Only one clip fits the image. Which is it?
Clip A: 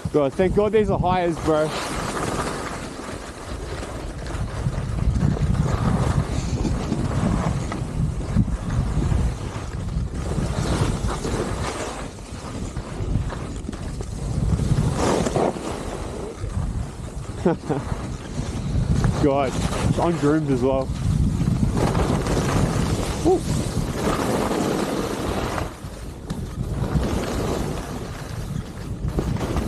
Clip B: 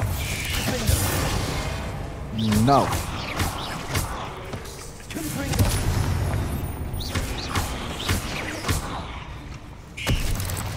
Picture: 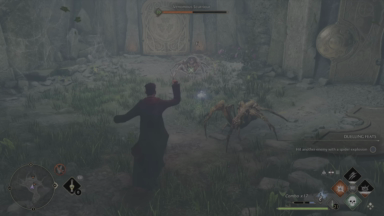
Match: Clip B